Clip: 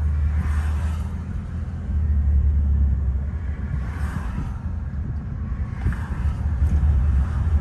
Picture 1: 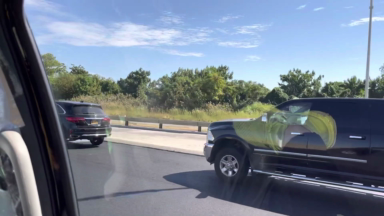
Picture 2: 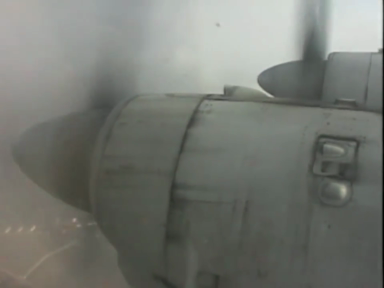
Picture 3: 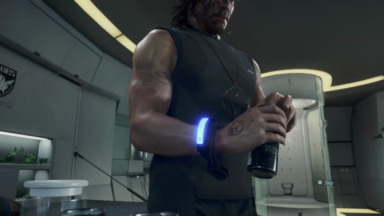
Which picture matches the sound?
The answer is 1